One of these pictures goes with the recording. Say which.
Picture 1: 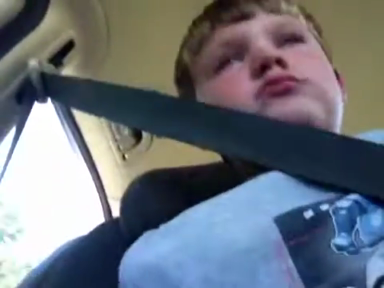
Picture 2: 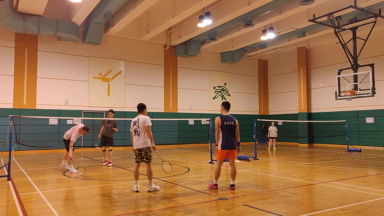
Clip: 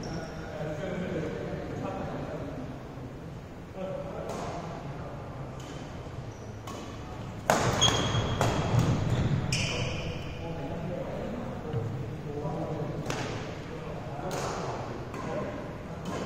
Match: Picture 2